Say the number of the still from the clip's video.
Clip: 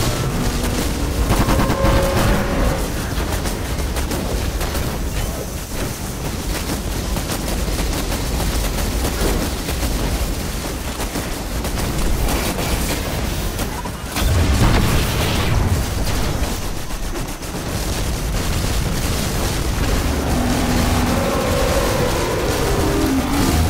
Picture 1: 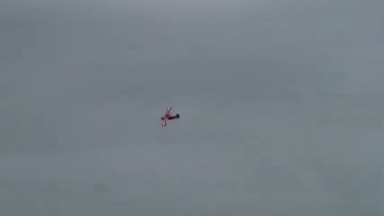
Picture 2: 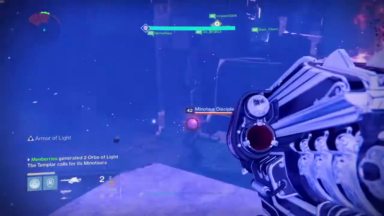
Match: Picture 2